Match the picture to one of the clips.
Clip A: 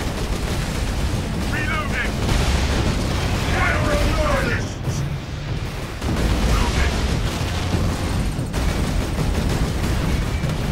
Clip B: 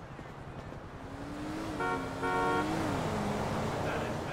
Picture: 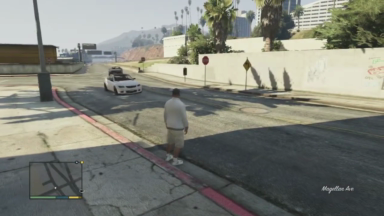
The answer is B